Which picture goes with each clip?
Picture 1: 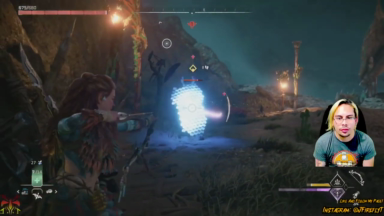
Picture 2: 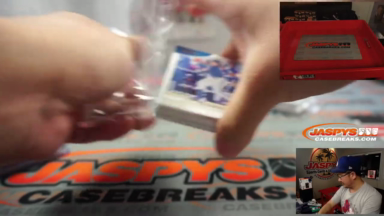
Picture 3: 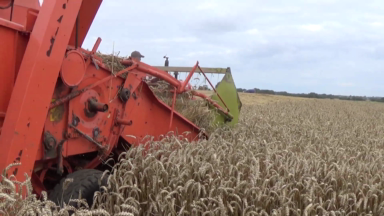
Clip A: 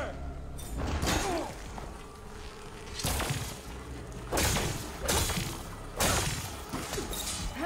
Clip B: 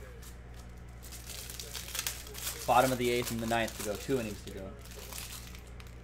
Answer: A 1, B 2